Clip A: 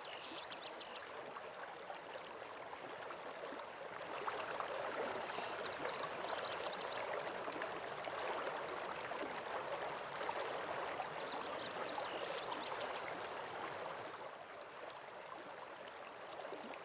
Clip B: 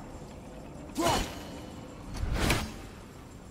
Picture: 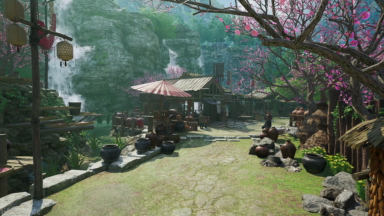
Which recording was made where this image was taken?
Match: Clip A